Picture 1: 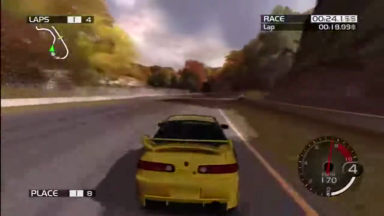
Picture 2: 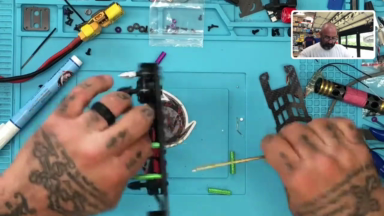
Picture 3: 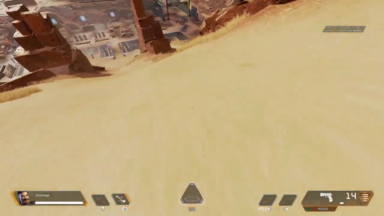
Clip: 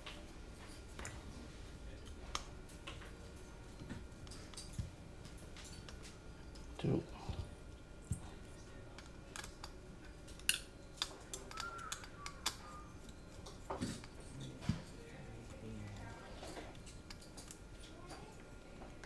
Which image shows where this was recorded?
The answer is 2